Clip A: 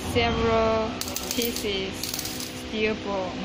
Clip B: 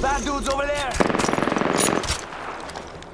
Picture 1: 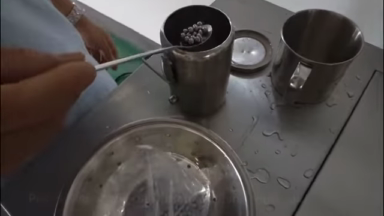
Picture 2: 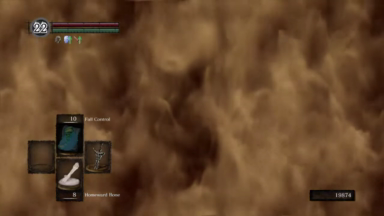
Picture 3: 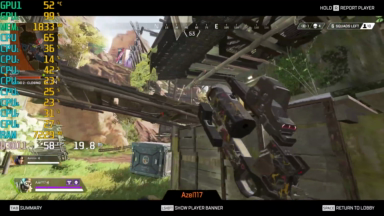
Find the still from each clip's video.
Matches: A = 1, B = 3